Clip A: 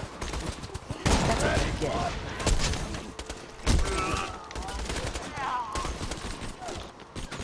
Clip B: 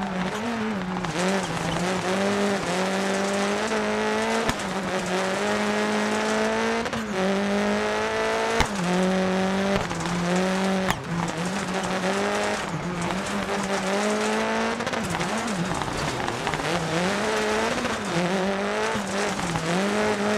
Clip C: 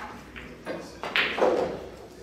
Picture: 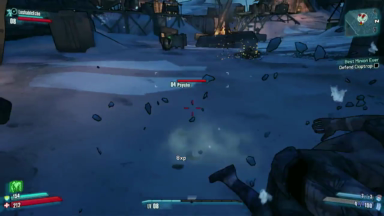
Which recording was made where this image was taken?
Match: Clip A